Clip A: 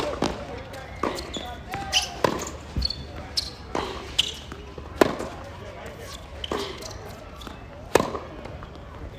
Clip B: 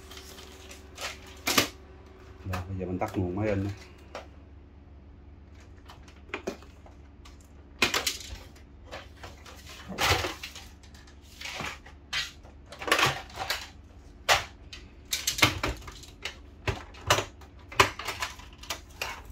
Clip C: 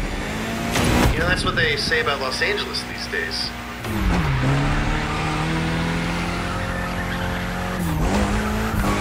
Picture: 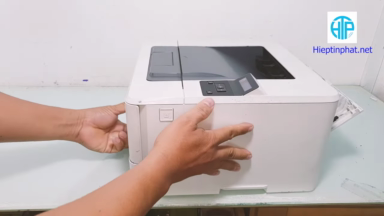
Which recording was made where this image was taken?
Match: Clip B